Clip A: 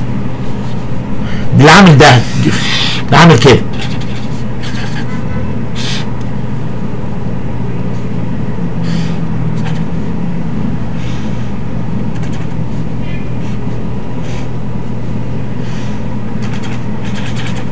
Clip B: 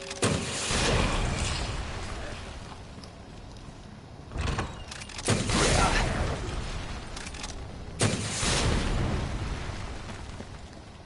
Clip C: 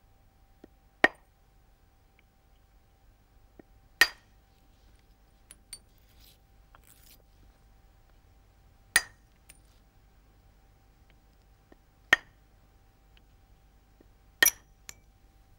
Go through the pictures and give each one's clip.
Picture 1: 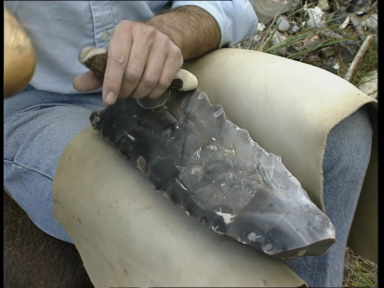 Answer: C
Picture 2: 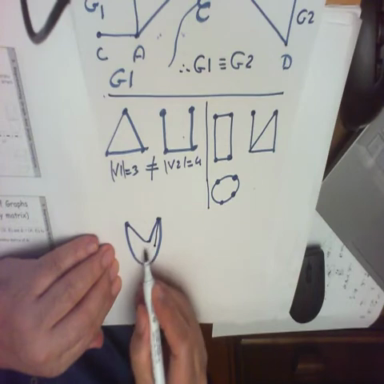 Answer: A